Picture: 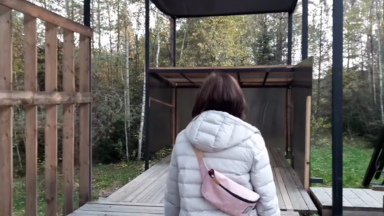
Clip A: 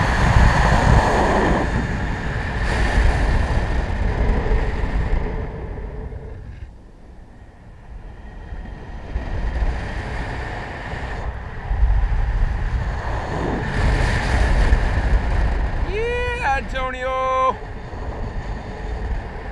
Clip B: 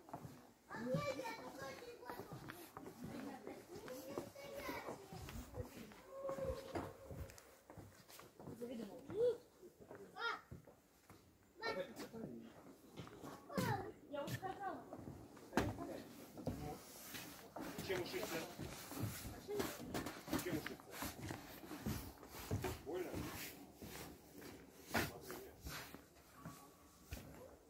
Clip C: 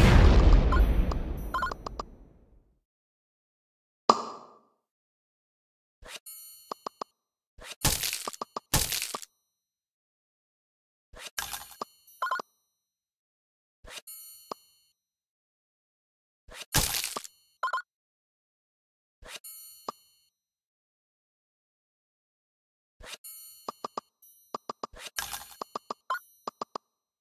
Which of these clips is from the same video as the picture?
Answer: B